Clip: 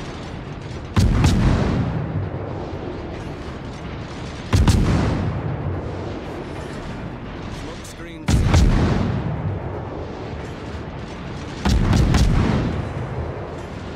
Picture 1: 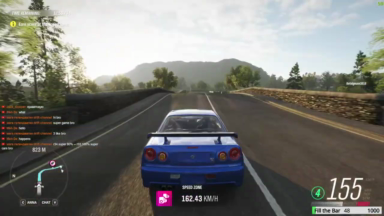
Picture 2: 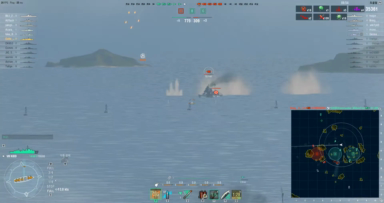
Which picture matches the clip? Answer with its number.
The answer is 2